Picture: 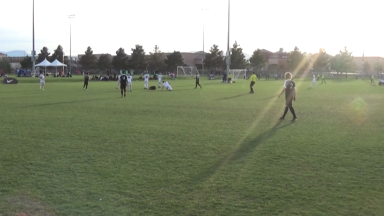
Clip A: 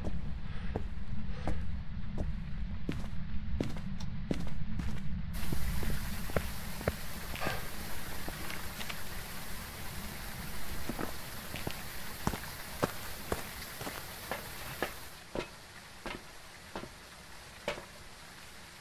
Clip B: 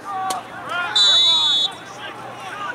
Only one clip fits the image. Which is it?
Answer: B